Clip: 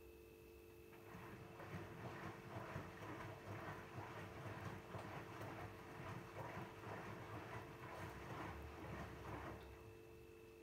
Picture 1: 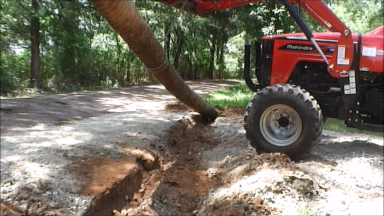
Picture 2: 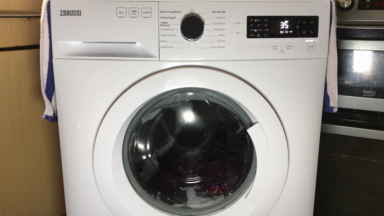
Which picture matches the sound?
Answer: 2